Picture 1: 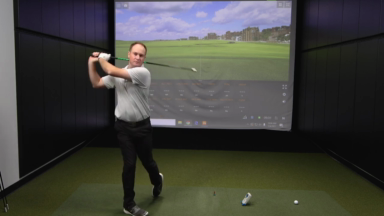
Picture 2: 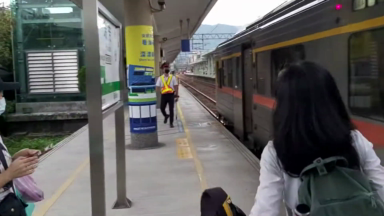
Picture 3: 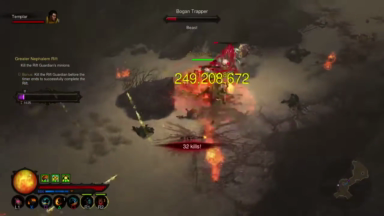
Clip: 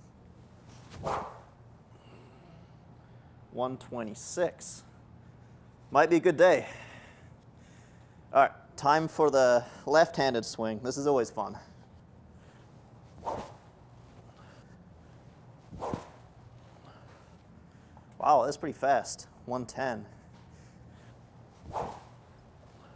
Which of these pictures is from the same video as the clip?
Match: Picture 1